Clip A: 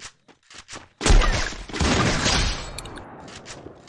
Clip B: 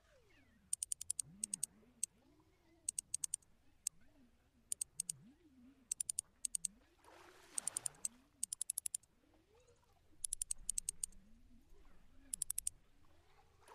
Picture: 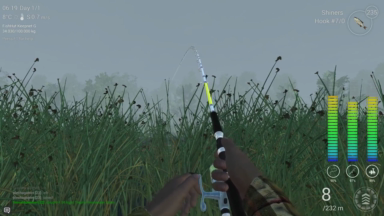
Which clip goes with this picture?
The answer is B